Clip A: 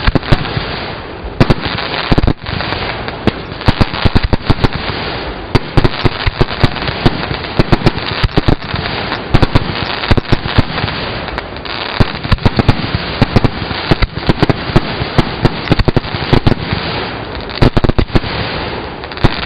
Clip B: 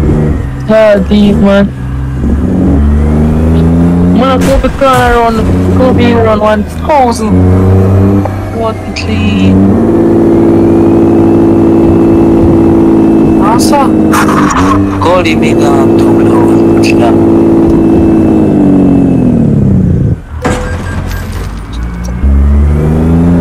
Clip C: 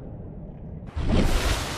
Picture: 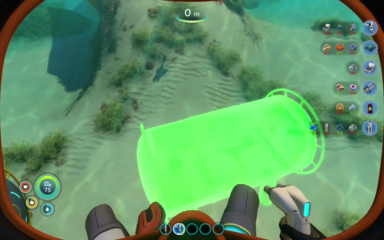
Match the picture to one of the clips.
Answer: C